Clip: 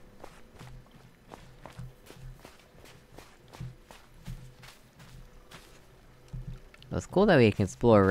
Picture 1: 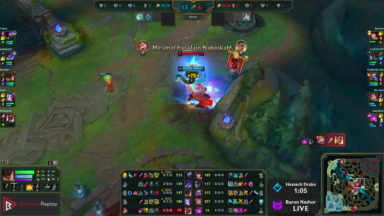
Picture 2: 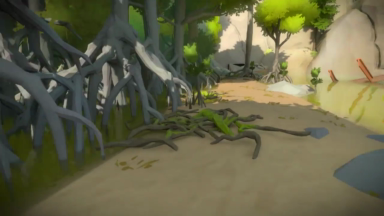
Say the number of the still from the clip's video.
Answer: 2